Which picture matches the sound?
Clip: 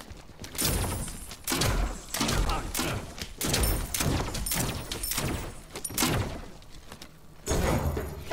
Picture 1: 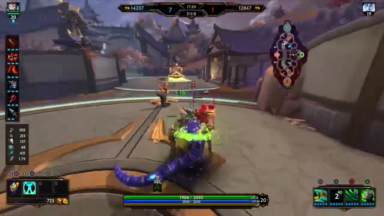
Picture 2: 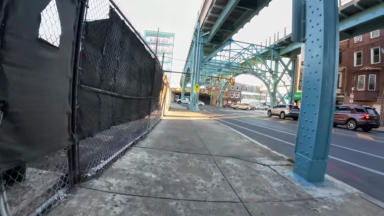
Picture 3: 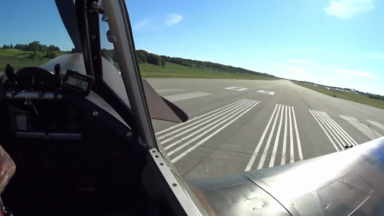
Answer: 1